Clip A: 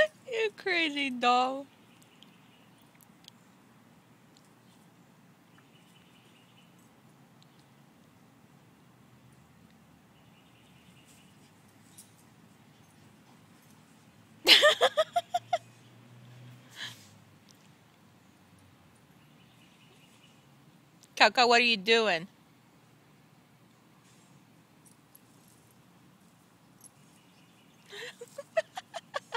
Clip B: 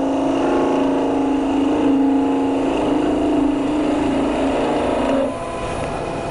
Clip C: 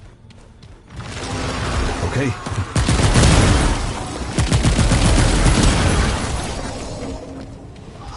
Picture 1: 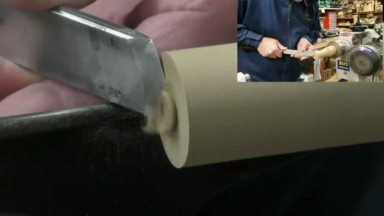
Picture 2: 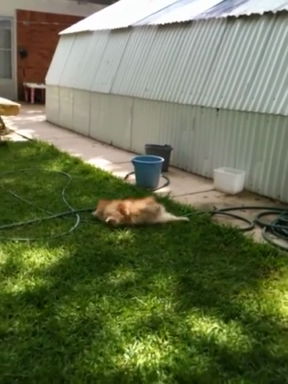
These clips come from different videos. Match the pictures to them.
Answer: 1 B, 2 A